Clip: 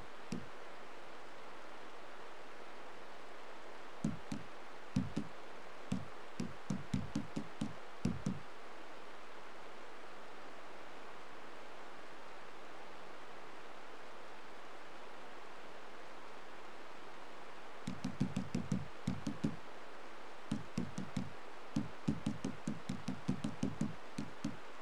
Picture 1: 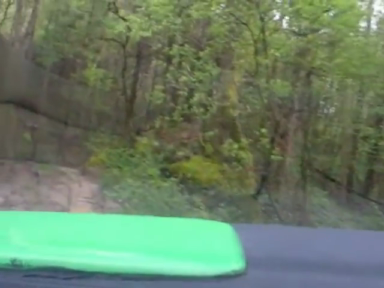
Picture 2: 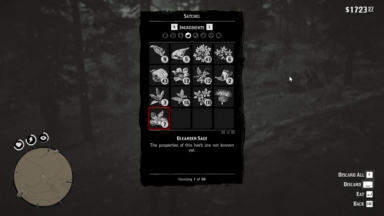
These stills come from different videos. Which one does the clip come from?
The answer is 2